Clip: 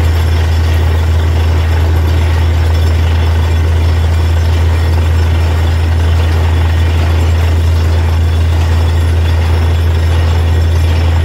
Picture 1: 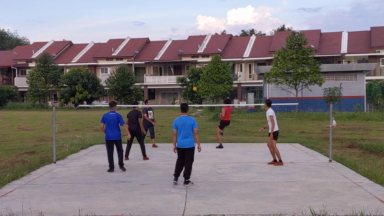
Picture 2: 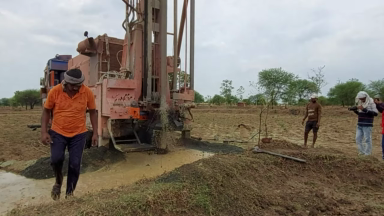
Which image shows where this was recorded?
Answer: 2